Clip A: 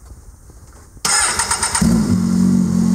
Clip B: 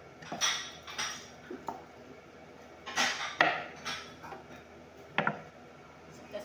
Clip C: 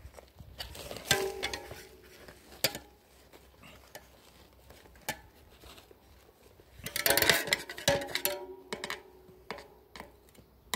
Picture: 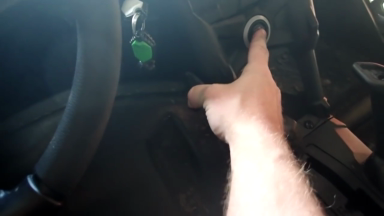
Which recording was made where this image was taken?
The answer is A